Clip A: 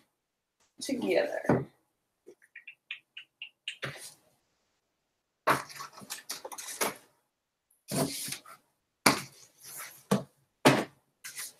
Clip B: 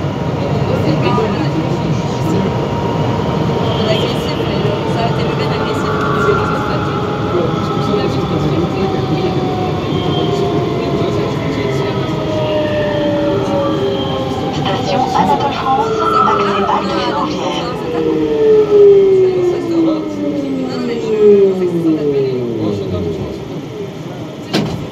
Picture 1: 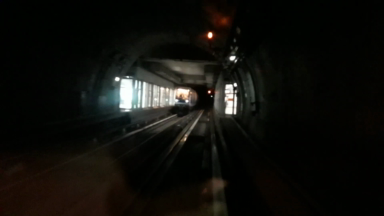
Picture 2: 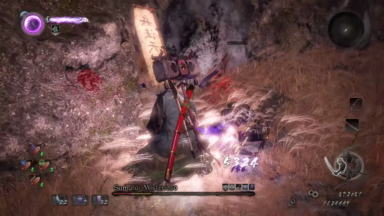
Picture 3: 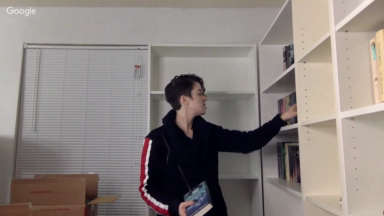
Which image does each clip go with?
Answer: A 3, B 1